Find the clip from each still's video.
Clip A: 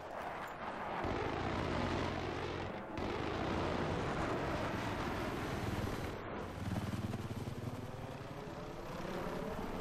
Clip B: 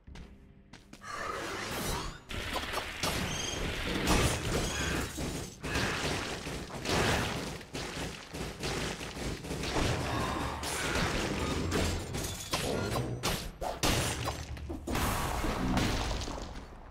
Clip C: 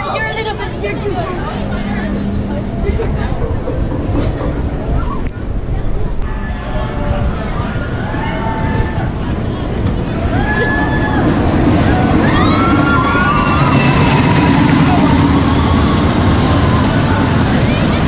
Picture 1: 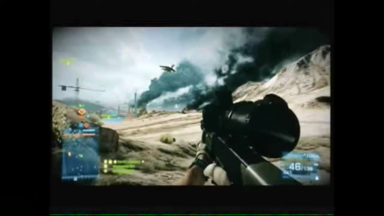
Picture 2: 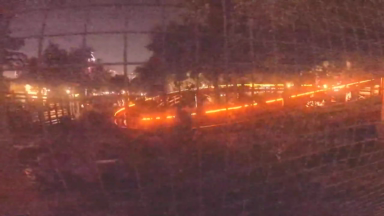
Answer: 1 A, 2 C